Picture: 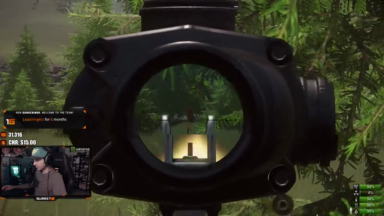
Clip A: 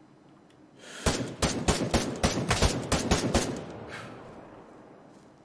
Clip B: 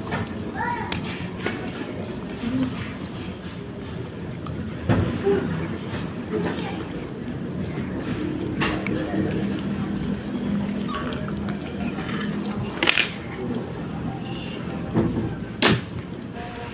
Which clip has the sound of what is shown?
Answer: A